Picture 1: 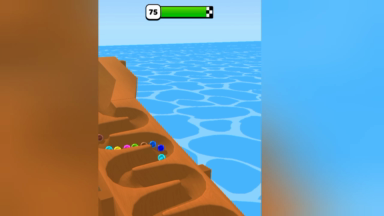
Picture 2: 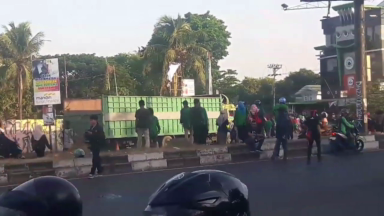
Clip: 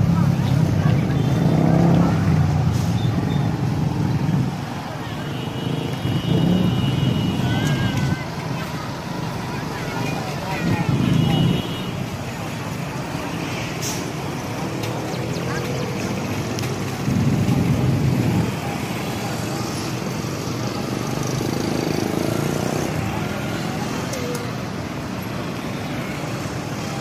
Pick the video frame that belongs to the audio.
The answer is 2